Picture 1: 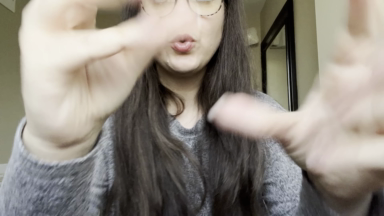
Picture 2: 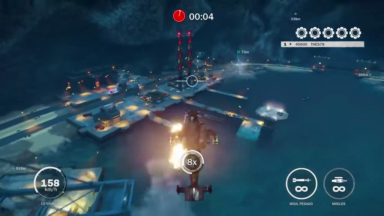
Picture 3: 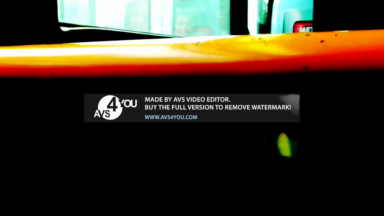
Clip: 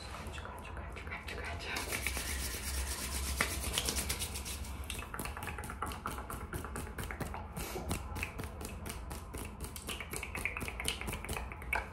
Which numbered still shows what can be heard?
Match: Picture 1